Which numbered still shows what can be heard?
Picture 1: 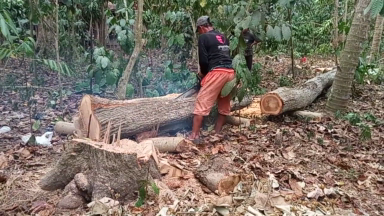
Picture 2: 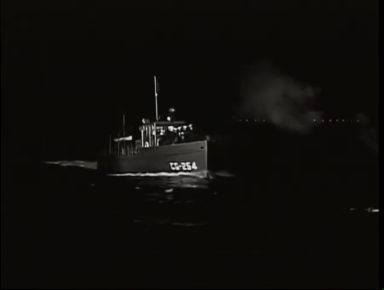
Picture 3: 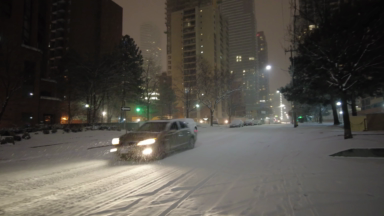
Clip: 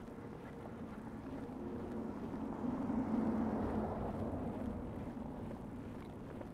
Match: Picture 3